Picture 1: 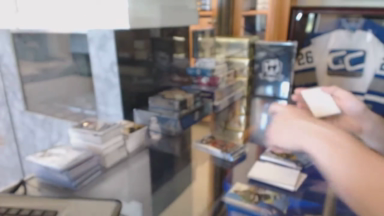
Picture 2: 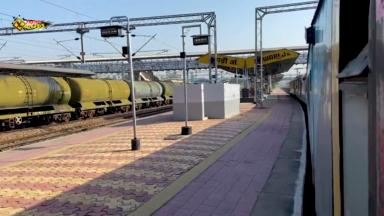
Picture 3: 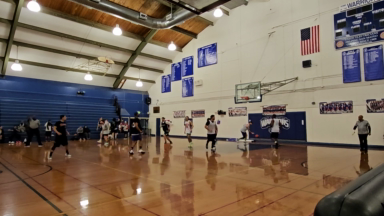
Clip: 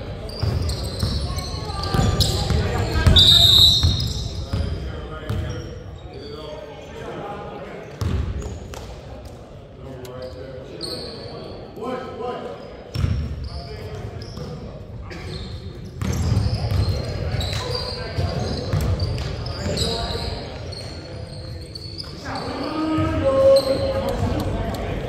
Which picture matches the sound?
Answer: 3